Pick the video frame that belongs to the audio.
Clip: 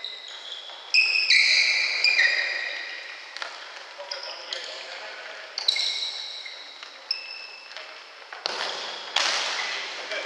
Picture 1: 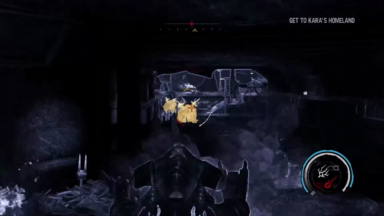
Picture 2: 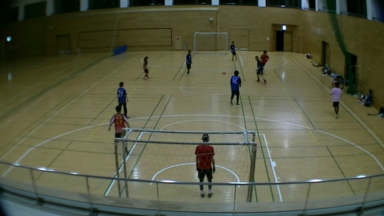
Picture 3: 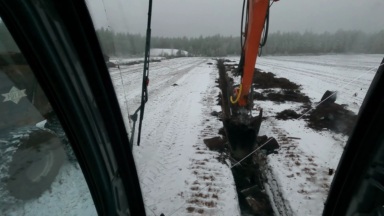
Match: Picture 2